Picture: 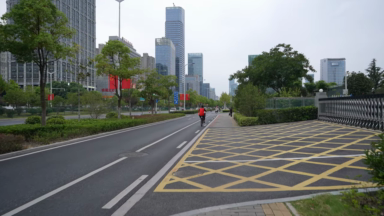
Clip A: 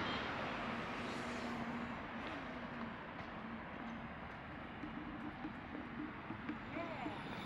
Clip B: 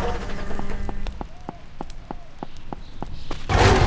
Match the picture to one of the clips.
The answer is A